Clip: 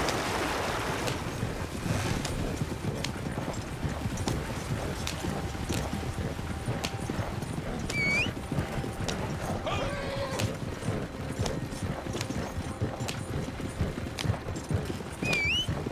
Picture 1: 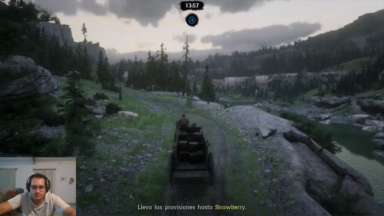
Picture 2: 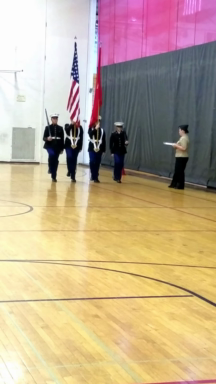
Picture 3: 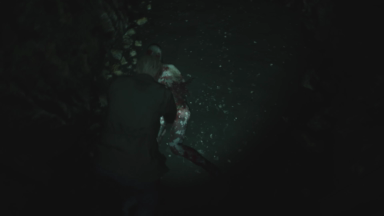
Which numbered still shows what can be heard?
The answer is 1